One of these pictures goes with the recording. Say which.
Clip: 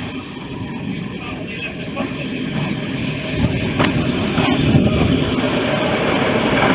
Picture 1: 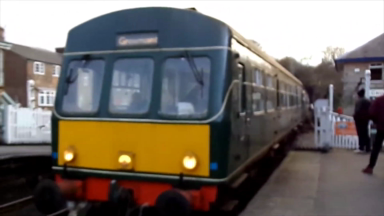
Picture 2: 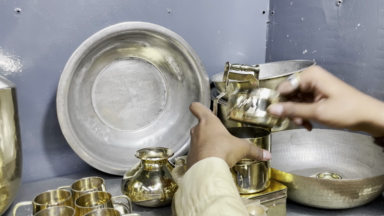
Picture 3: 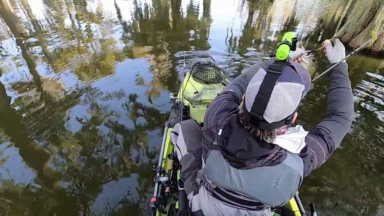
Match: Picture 1